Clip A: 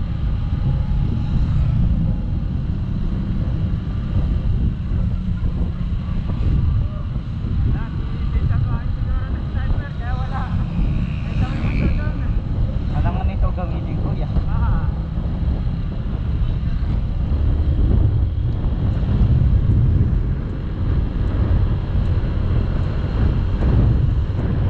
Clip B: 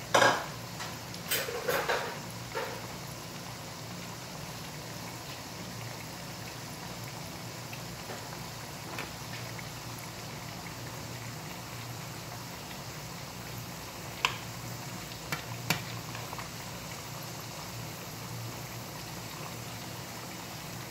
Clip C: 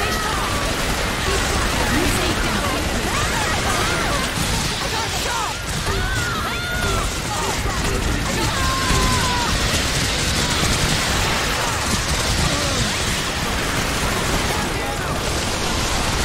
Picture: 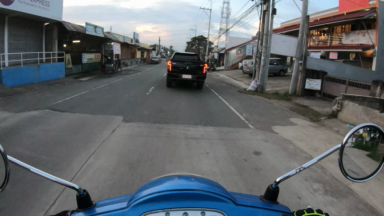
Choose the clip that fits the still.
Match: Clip A